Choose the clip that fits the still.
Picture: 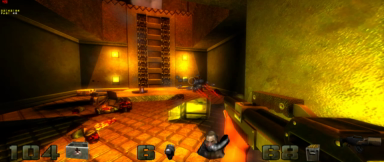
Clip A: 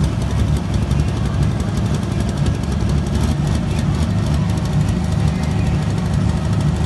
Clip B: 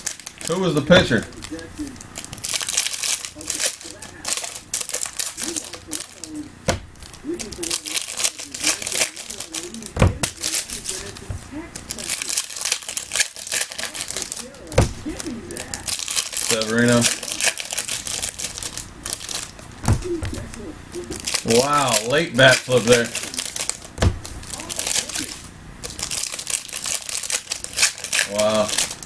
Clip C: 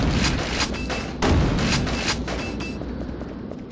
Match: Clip C